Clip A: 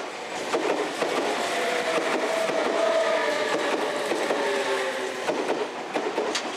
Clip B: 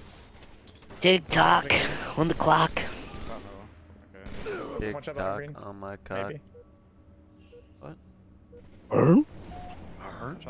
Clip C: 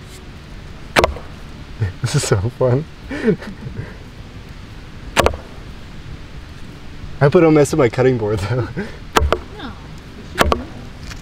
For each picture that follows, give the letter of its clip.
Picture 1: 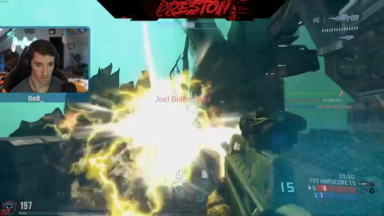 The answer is B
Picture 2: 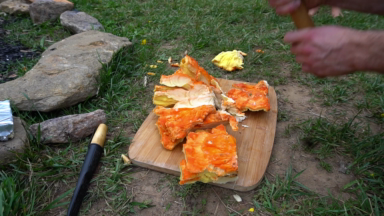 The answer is C